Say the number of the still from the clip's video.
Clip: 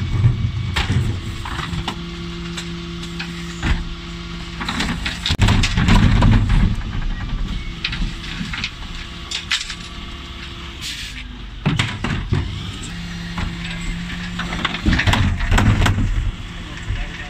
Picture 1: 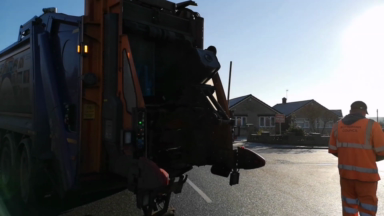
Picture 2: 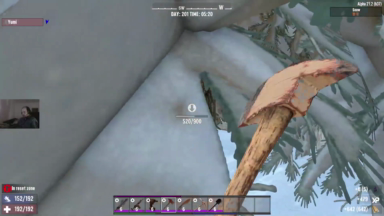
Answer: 1